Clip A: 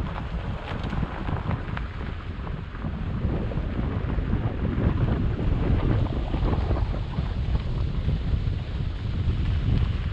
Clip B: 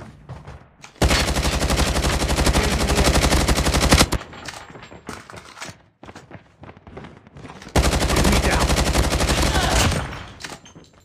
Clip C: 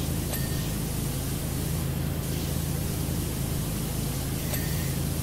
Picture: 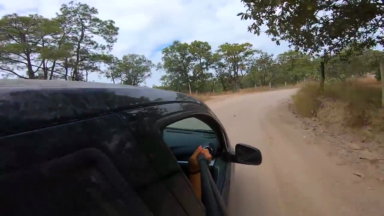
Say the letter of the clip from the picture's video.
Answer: A